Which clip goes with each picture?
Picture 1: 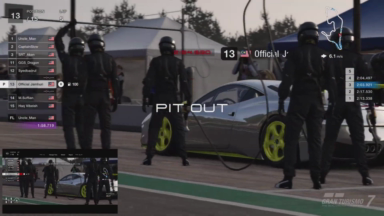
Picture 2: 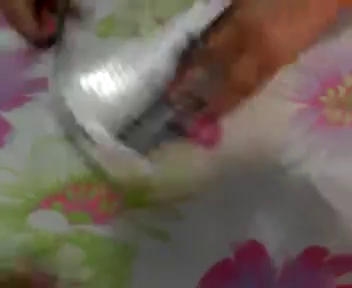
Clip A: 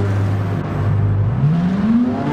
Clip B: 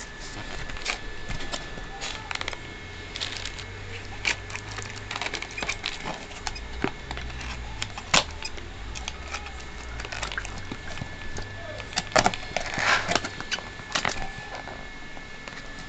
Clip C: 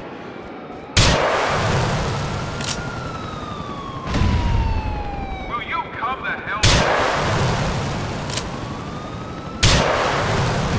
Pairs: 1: A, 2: B